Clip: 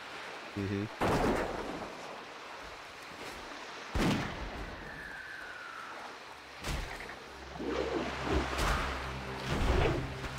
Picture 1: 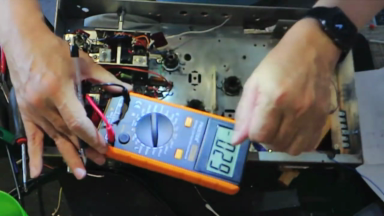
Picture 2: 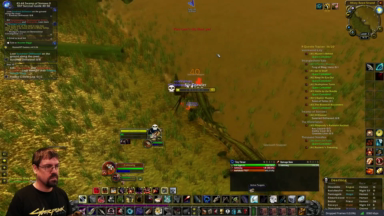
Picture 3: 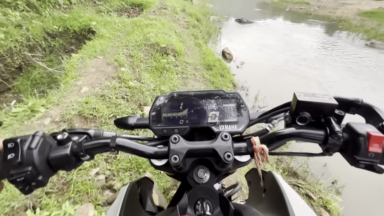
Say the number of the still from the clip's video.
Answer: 2